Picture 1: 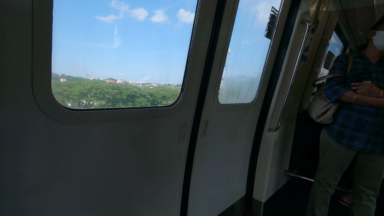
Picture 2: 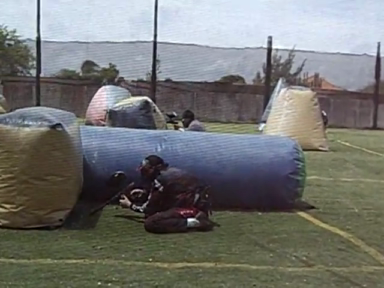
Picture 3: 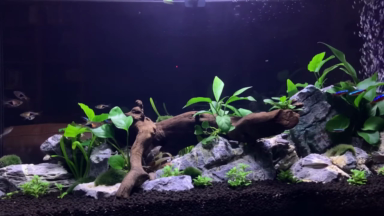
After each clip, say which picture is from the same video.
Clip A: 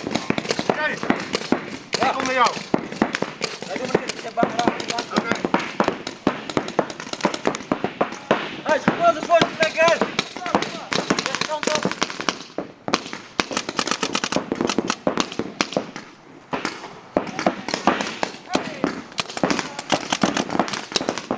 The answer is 2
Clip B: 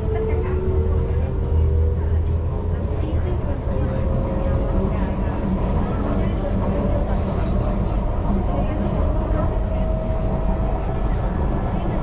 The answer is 1